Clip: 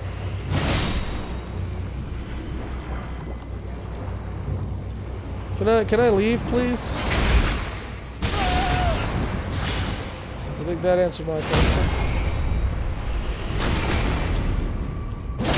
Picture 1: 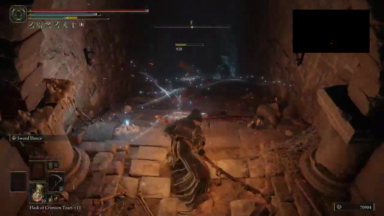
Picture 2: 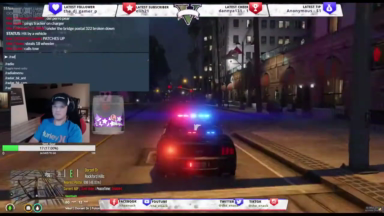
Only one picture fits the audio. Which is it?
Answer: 1